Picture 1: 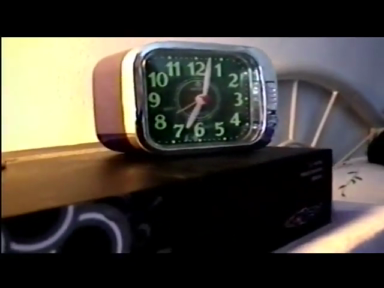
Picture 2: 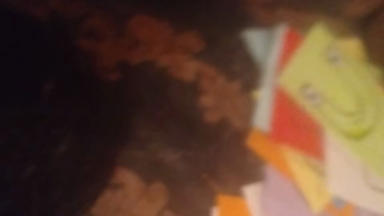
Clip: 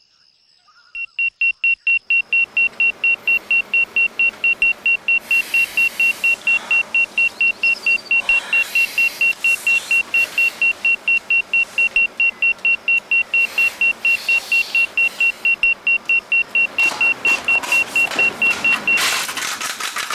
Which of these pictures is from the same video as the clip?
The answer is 1